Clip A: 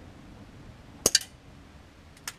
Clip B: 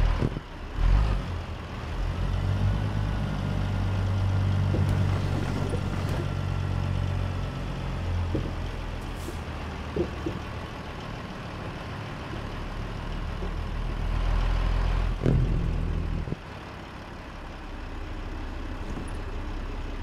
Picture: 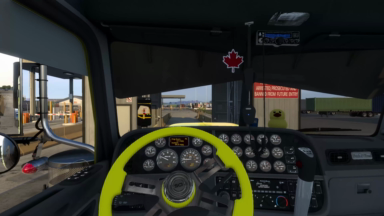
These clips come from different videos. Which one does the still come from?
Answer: B